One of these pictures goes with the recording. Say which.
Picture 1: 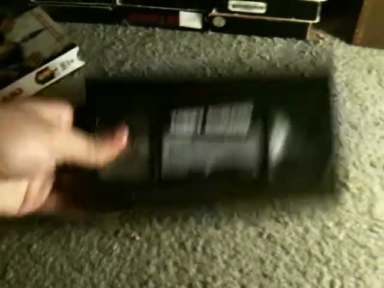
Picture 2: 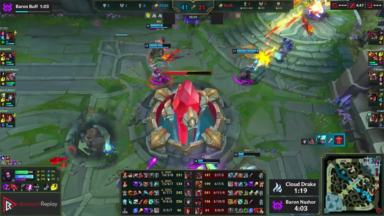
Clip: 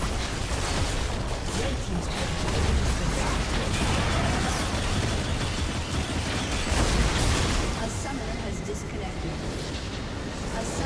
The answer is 2